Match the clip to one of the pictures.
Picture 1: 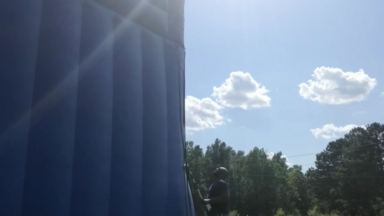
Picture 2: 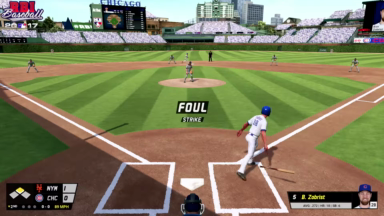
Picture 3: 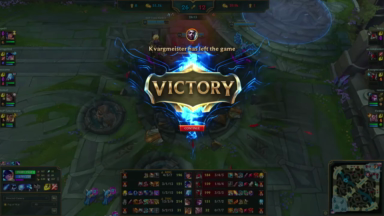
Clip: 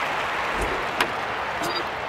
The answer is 2